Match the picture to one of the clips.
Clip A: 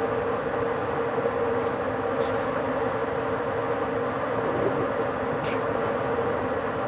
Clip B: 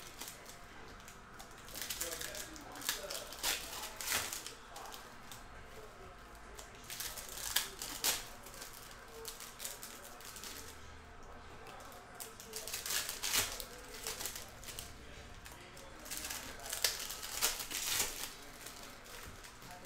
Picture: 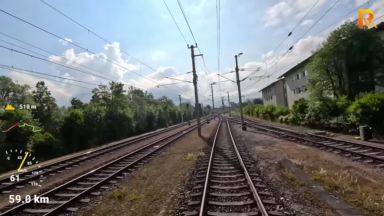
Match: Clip A